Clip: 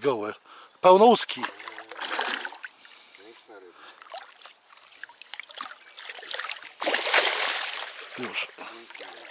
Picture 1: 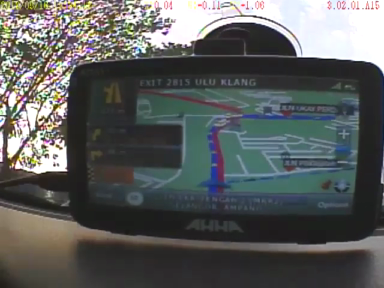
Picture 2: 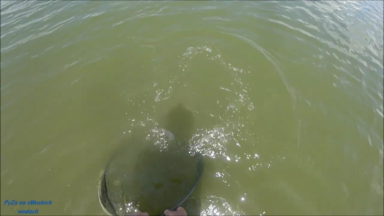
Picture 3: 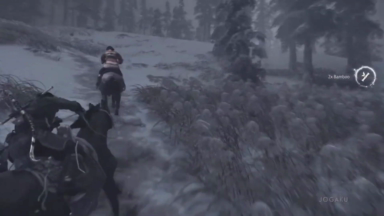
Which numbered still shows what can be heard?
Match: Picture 2